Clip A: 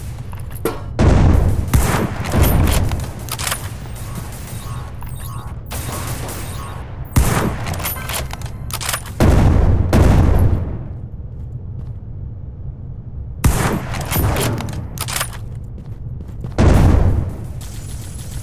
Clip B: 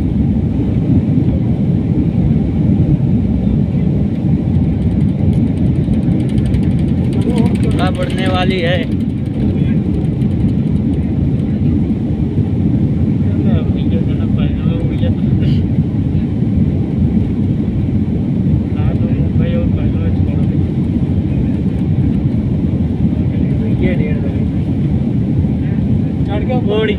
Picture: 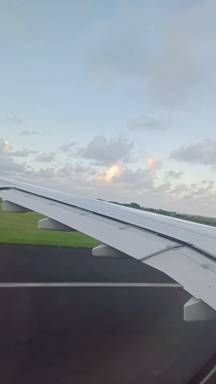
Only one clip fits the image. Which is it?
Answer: B